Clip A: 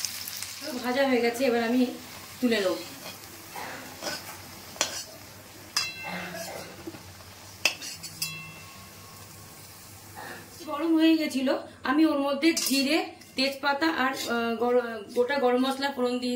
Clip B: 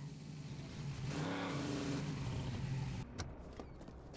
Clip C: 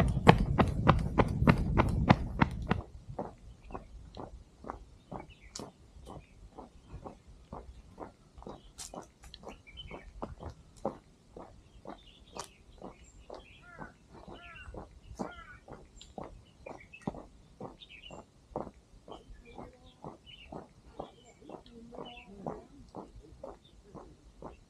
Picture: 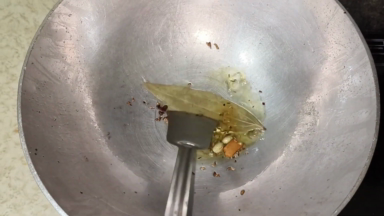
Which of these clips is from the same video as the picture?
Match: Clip A